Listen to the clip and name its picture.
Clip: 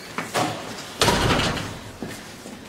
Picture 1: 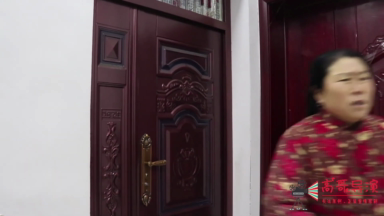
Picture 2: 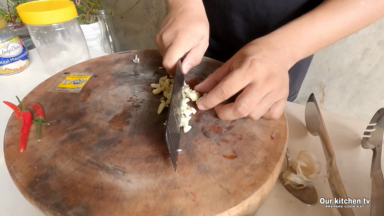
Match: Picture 1